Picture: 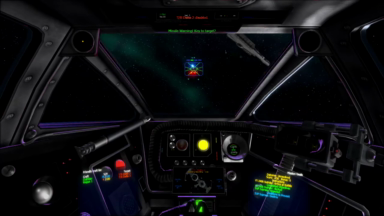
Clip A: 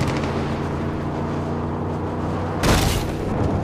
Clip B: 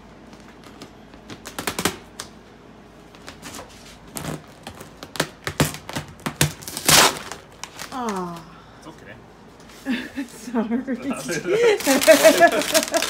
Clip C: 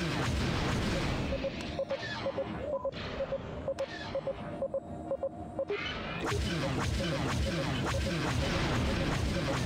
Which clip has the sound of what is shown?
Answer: C